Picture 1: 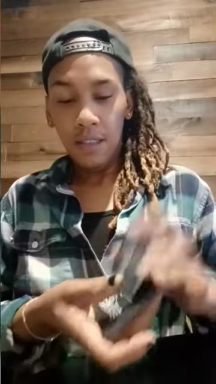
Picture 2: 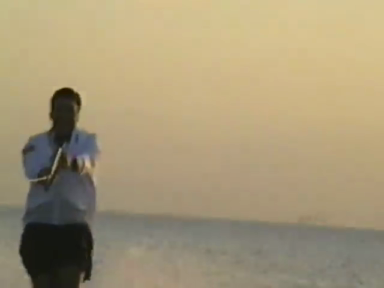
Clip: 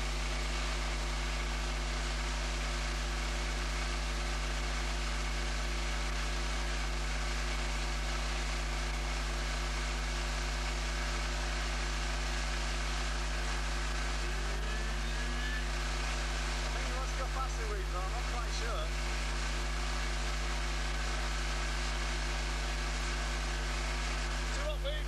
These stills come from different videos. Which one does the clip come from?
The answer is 2